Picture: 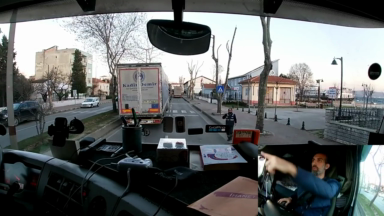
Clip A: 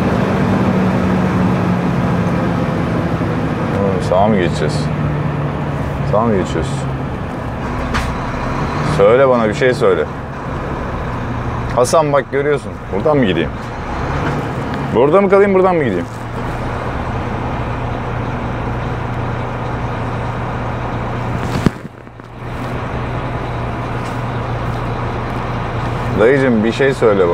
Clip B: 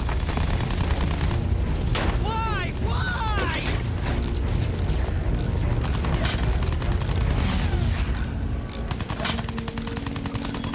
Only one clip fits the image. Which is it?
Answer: A